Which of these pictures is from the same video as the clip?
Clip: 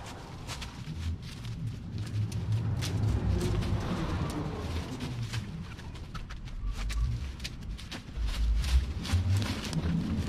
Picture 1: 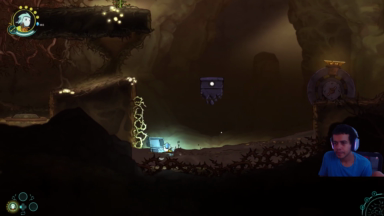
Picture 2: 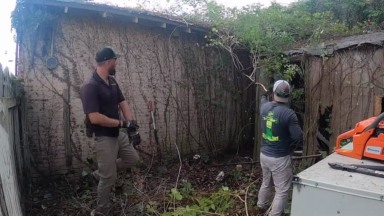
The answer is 2